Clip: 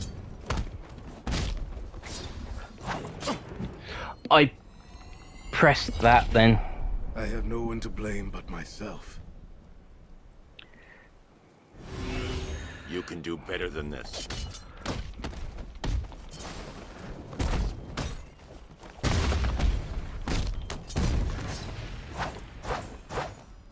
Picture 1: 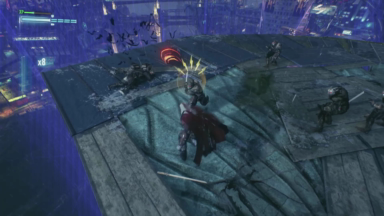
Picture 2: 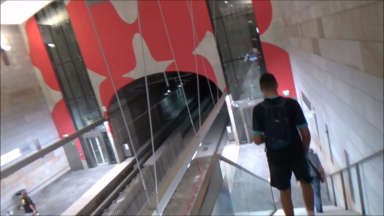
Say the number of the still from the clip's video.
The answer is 1